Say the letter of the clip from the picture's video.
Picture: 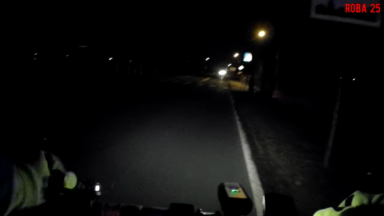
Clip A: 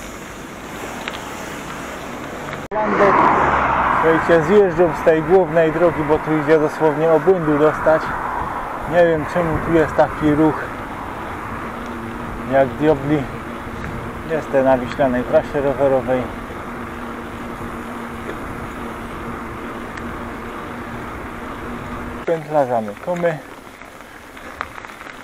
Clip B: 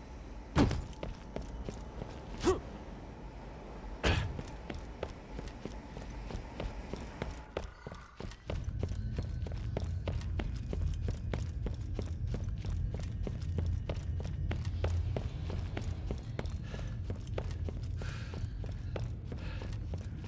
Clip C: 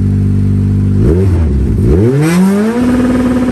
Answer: A